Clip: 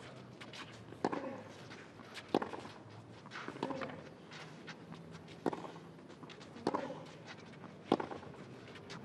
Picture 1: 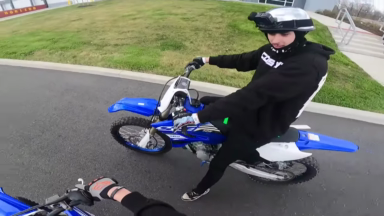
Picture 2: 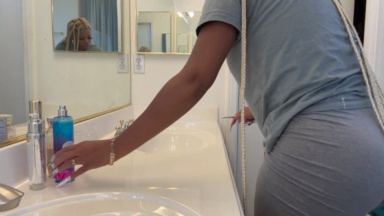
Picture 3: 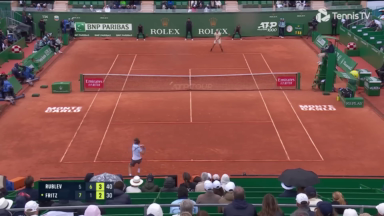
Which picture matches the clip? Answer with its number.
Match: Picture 3